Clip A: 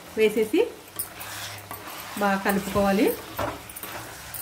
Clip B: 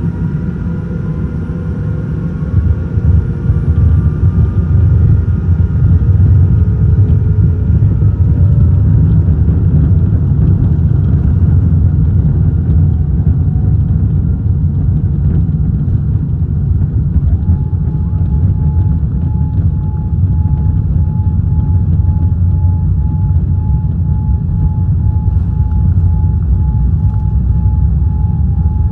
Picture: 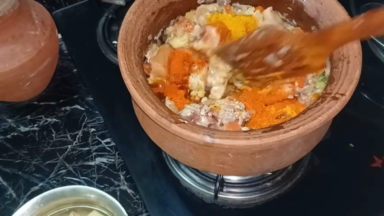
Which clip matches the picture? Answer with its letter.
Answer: A